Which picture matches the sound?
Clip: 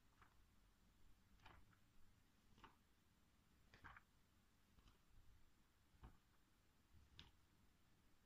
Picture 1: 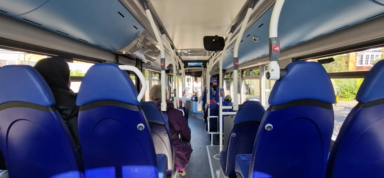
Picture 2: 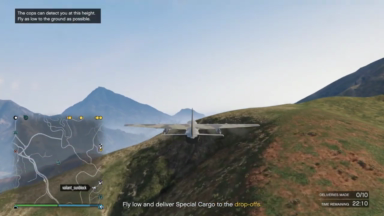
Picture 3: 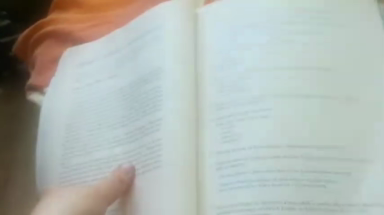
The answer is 3